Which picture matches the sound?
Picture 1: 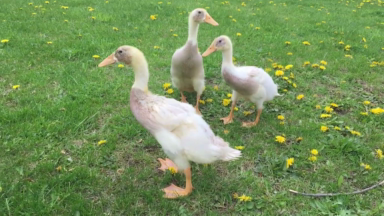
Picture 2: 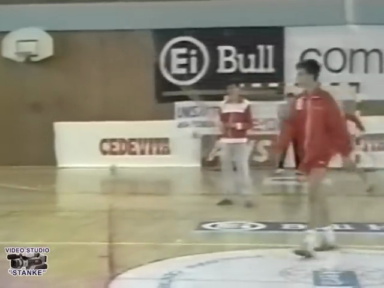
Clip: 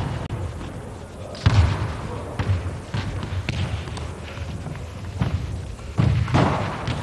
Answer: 2